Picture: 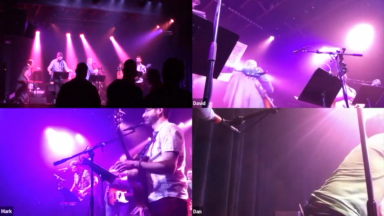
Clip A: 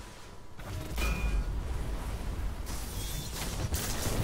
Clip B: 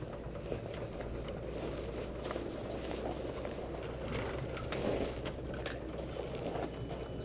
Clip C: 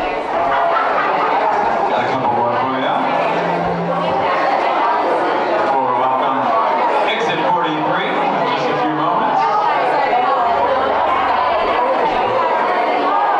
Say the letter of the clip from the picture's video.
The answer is C